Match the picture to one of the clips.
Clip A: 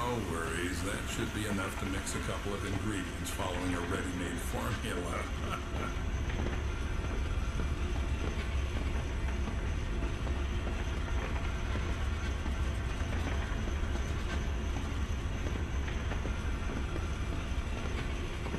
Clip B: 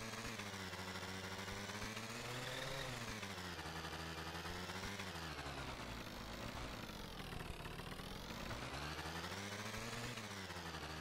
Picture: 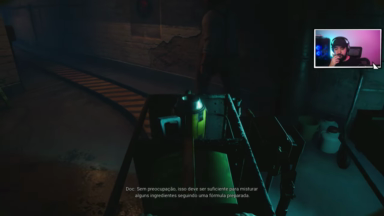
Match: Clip A